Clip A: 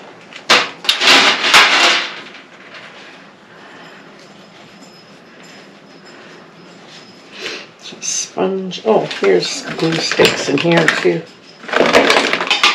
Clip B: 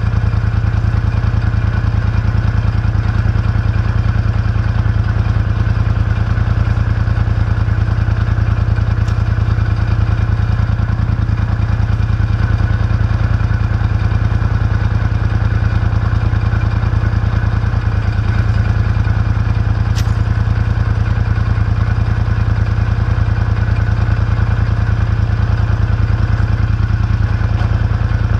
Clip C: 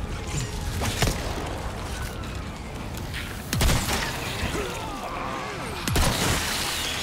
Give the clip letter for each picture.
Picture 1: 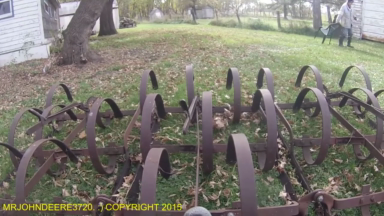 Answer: B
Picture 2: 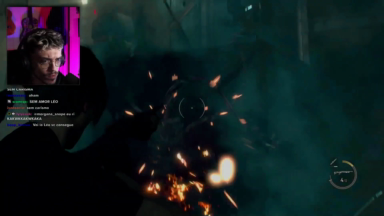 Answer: C